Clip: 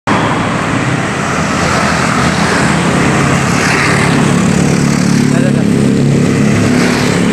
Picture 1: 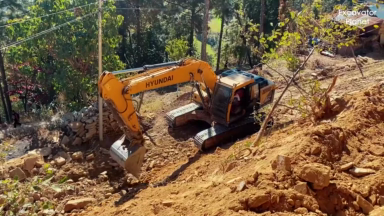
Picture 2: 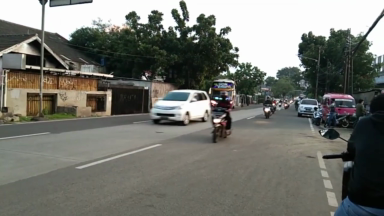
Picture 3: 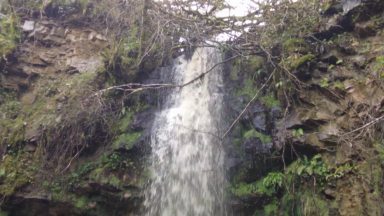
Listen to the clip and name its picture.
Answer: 2